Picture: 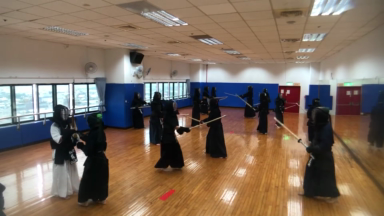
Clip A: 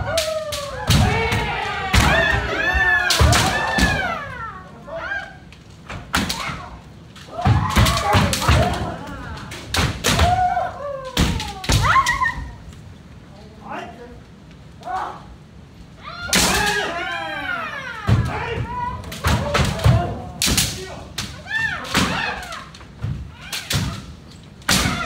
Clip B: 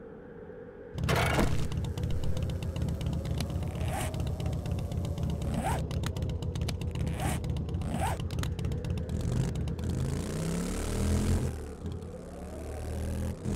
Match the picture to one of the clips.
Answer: A